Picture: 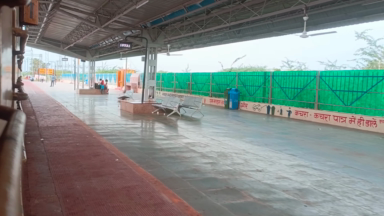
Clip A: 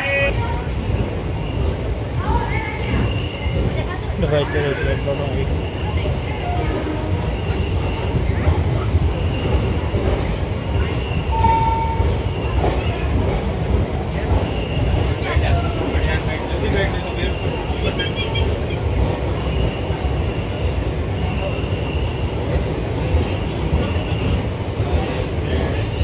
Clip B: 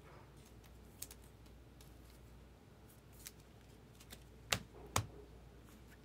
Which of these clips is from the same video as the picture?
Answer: A